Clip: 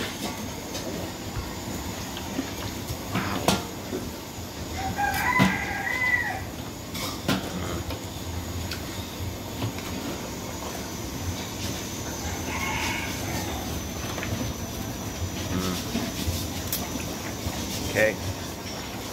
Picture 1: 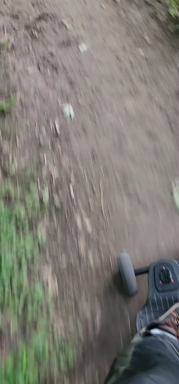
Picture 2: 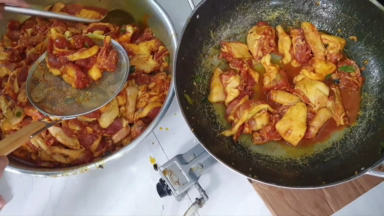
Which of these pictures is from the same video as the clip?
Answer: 2